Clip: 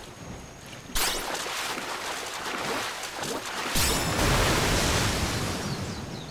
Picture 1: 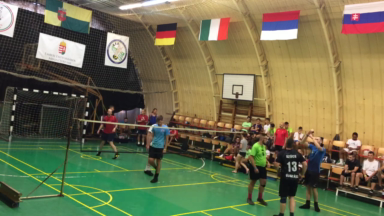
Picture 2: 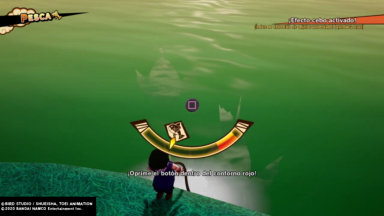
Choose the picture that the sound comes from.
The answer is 2